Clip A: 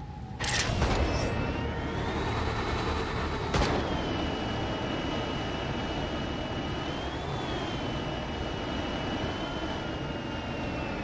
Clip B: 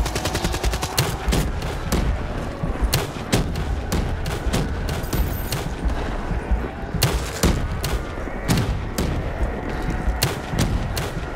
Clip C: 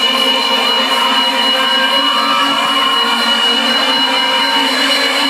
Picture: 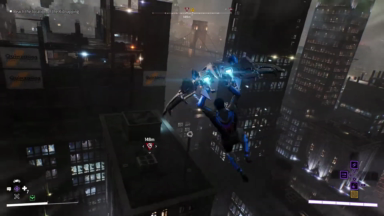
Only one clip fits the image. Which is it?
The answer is A